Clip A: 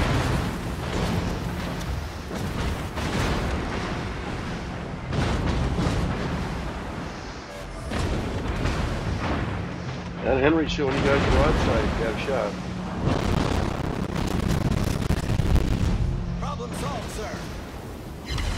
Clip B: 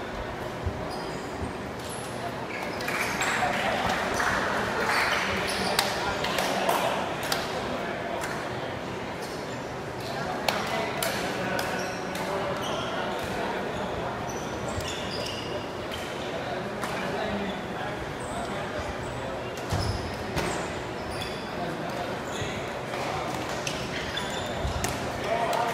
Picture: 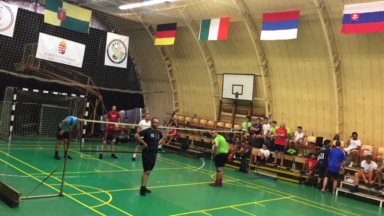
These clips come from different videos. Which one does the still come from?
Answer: B